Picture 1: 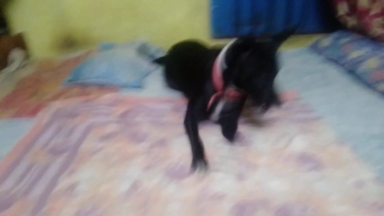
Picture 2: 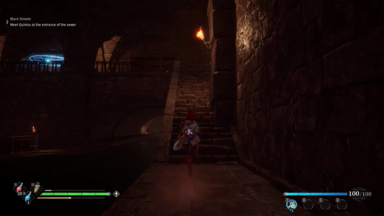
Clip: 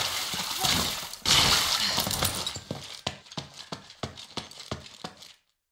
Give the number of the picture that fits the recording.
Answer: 2